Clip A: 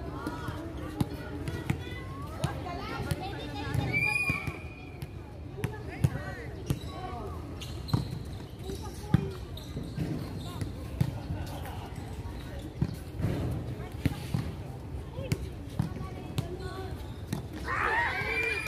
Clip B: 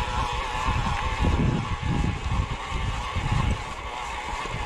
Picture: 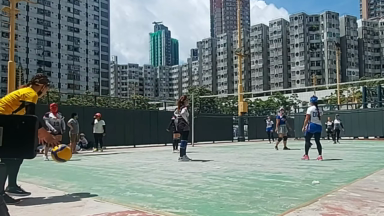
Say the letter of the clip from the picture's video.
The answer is A